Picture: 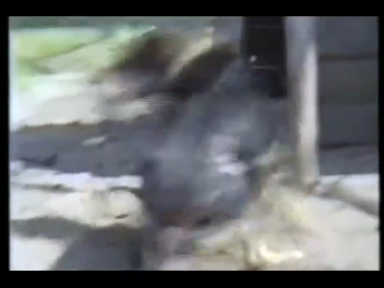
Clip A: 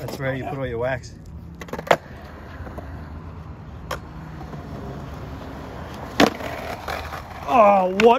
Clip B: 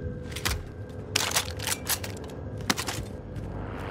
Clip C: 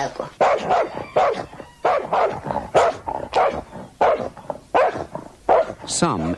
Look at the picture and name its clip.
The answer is C